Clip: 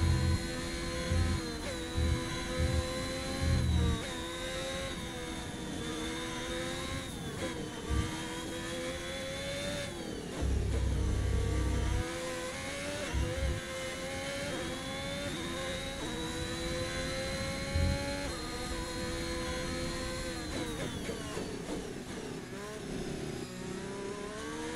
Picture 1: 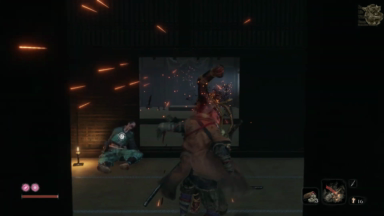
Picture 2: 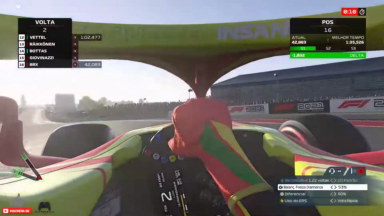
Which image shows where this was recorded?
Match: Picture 2